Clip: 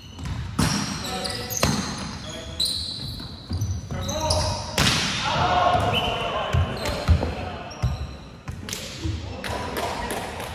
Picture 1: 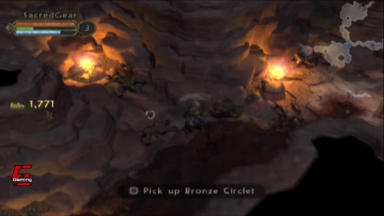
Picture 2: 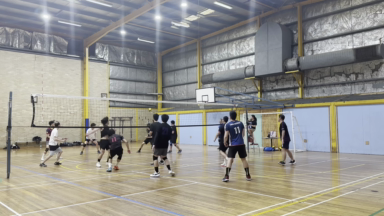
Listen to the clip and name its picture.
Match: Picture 2